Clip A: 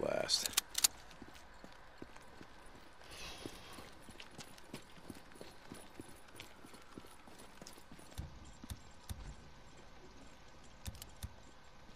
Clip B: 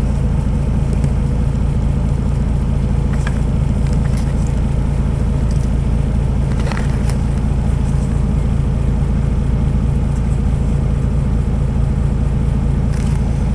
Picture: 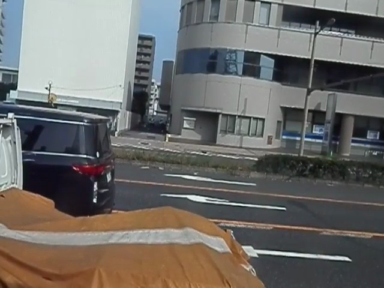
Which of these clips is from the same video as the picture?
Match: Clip B